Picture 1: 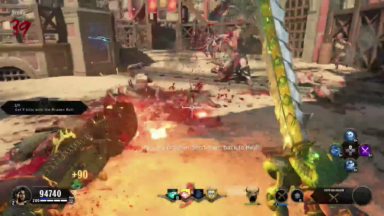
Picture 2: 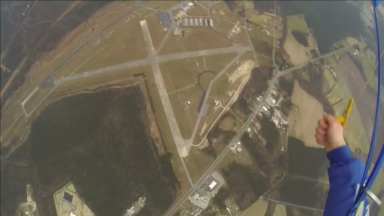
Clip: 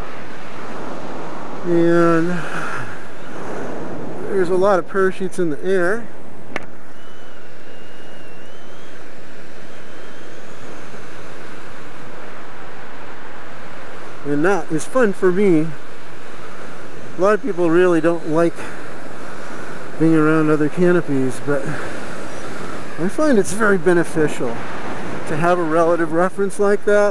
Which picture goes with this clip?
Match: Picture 2